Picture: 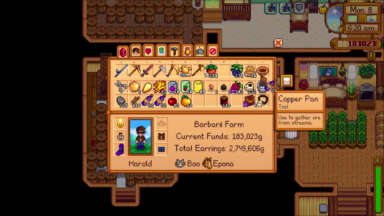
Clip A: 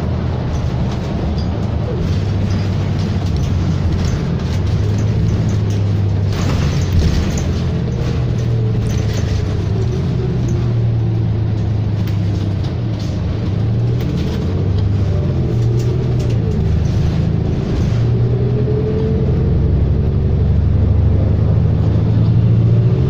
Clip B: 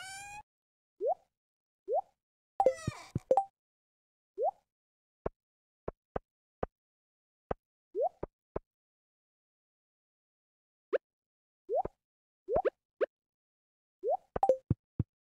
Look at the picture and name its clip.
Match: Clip B